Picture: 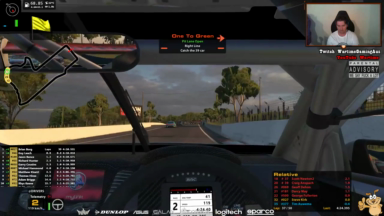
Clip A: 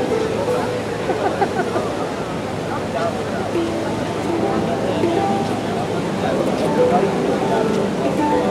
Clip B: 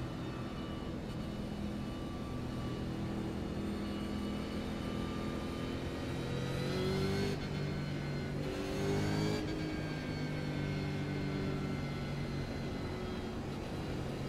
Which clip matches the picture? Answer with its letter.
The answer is B